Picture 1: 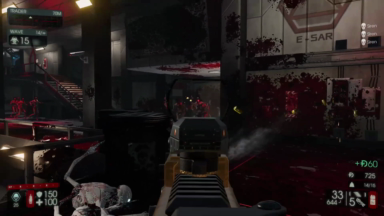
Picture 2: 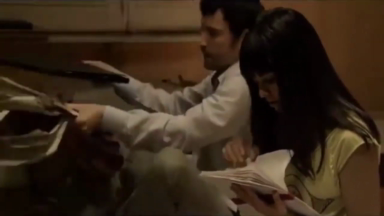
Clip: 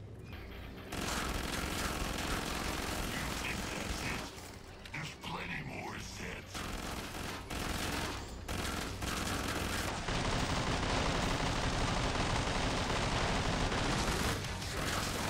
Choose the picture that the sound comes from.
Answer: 1